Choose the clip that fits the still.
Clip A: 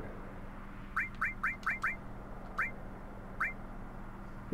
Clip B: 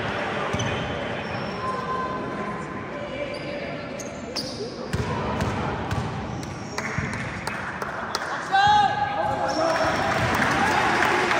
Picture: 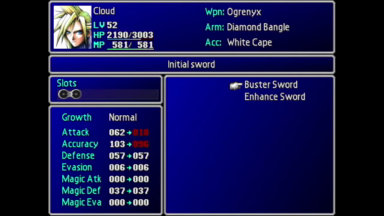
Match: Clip A